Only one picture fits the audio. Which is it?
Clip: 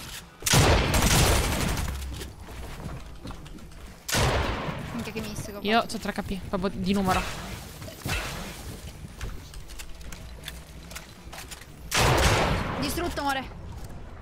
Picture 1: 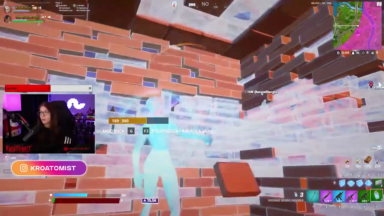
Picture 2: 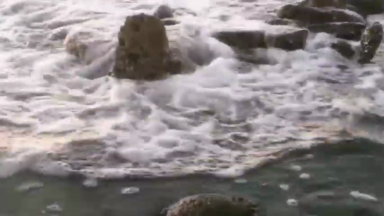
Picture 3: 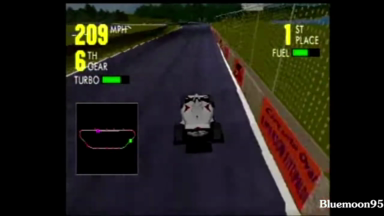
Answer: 1